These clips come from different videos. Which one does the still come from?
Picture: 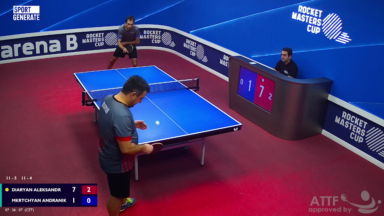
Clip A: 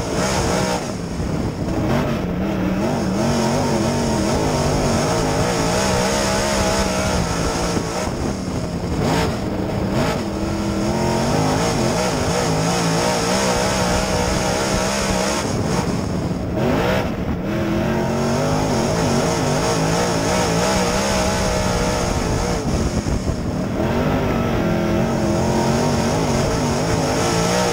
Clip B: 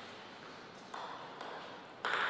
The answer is B